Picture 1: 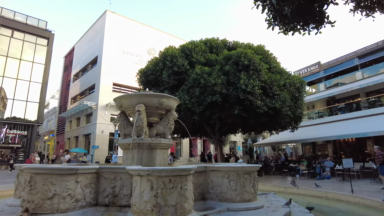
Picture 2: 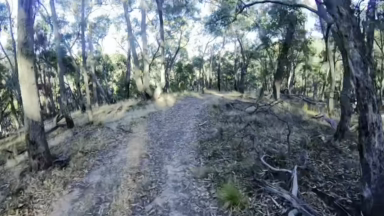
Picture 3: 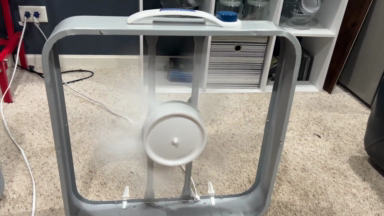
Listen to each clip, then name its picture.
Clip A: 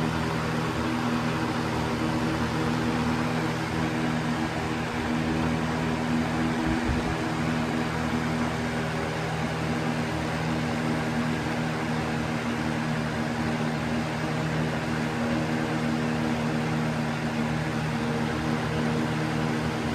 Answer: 3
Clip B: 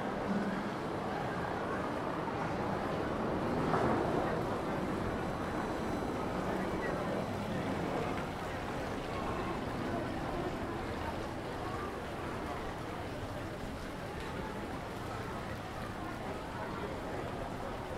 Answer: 1